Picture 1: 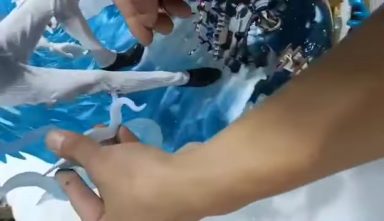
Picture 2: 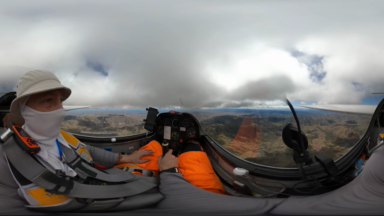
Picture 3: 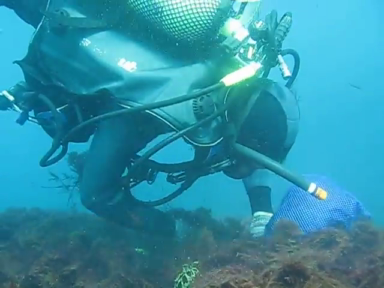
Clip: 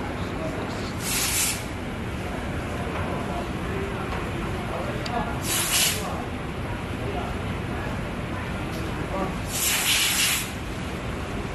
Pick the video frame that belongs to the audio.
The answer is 1